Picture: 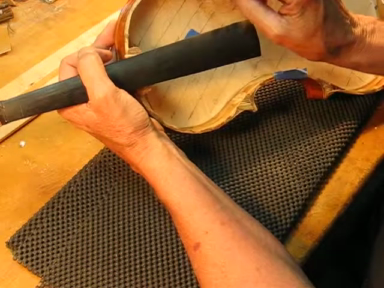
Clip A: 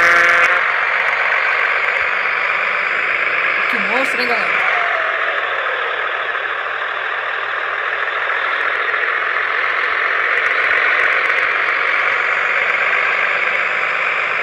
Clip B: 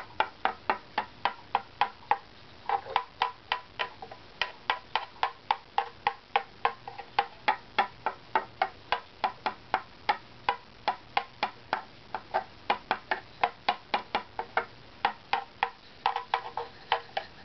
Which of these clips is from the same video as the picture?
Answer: B